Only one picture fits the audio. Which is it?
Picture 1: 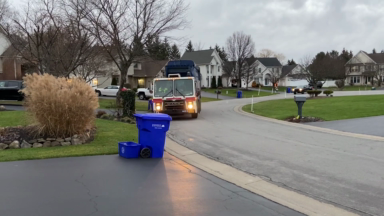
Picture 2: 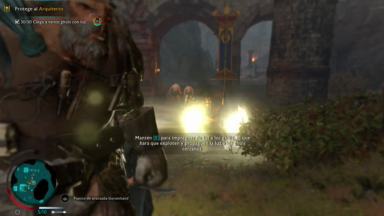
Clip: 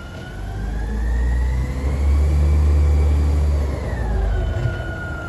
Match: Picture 1